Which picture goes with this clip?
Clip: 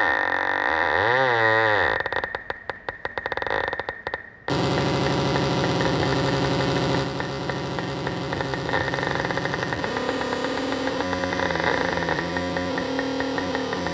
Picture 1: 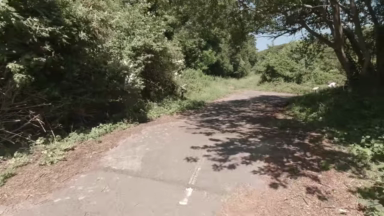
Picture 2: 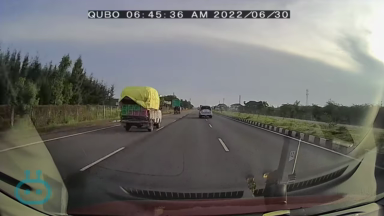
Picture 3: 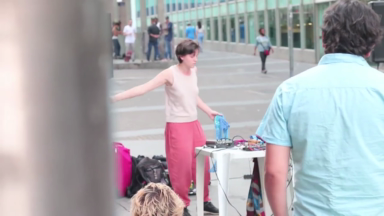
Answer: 3